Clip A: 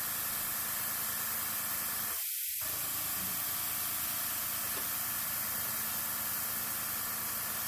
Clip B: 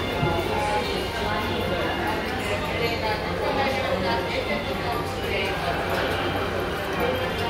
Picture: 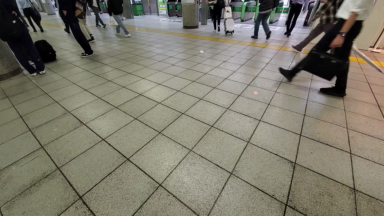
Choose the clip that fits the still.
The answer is B